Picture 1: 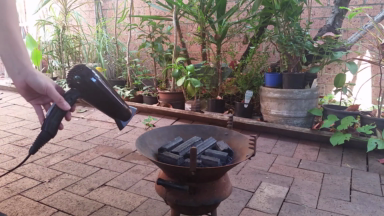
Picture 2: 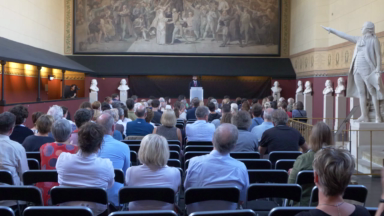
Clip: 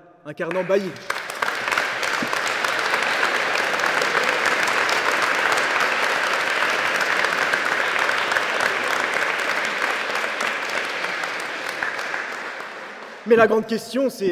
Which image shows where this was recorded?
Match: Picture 2